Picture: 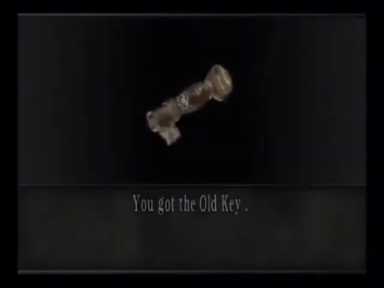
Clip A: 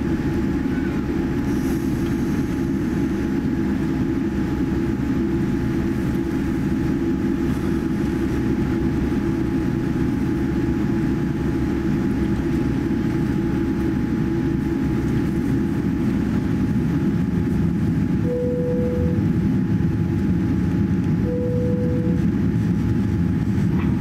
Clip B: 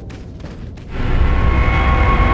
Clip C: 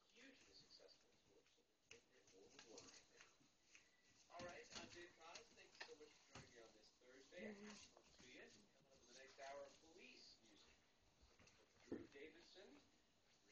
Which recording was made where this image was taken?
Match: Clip B